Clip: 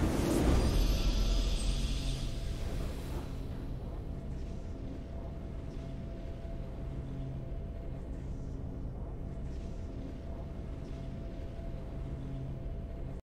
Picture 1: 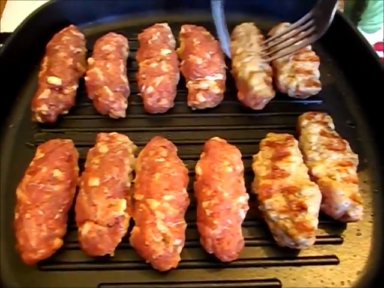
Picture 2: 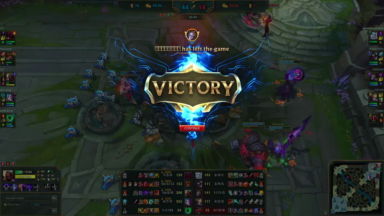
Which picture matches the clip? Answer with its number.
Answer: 2